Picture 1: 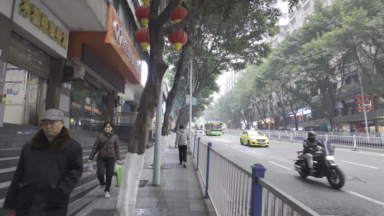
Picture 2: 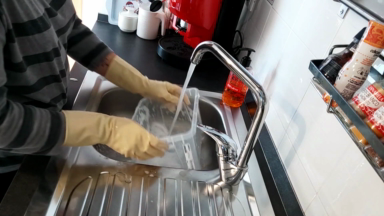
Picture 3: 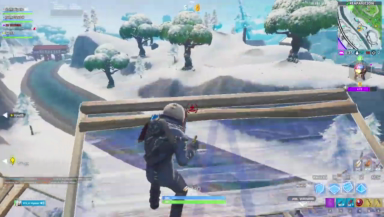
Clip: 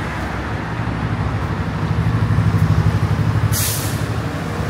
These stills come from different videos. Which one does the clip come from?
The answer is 1